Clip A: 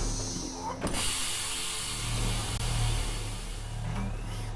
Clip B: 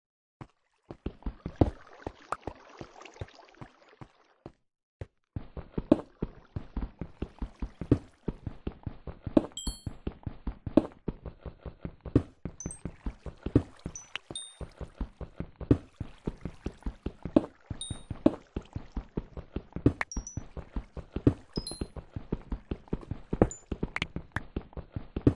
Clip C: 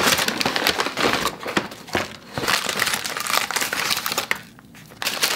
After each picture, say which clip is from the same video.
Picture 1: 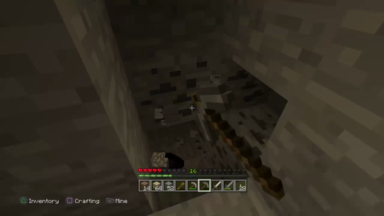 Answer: B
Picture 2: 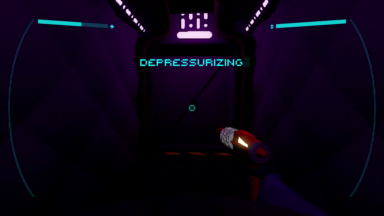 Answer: A